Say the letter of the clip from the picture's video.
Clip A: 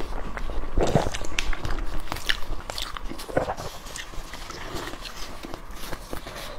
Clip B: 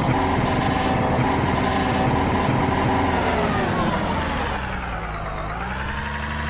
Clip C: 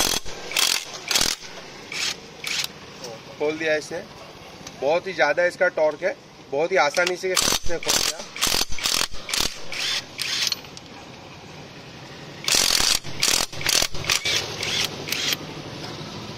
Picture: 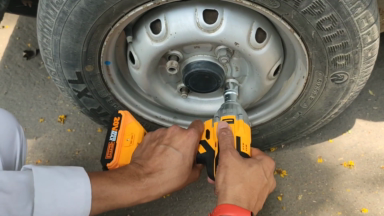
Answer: C